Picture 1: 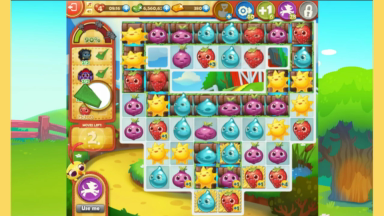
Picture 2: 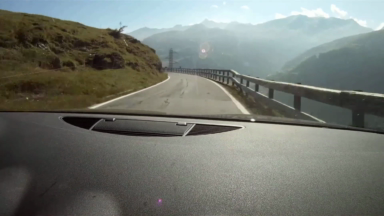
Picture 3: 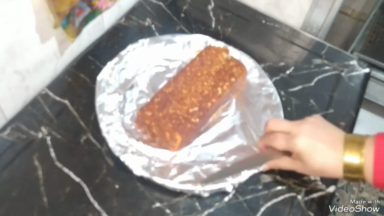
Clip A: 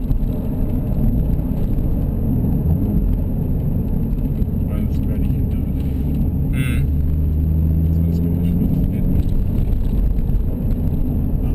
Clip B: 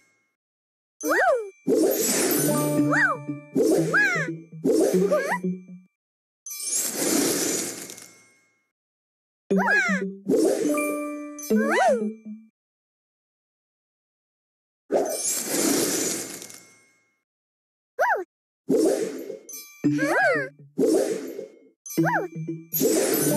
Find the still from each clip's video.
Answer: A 2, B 1